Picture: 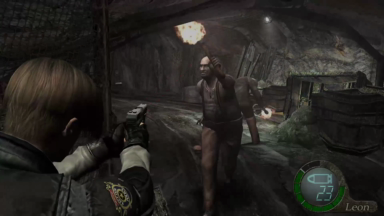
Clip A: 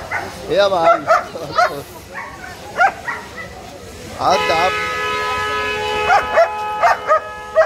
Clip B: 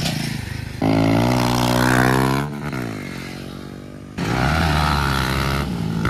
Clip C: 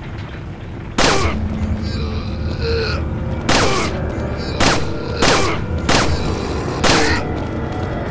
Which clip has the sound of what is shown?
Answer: C